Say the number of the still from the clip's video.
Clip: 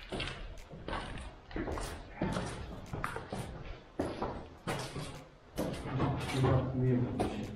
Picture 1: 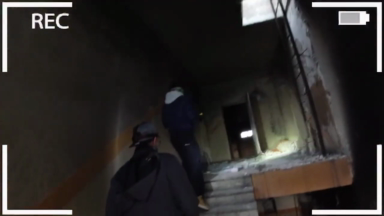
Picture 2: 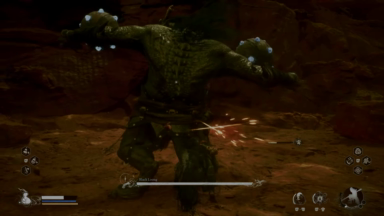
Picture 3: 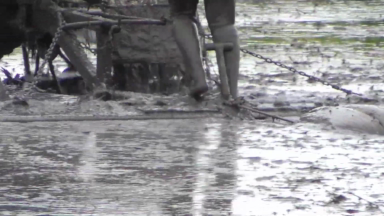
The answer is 1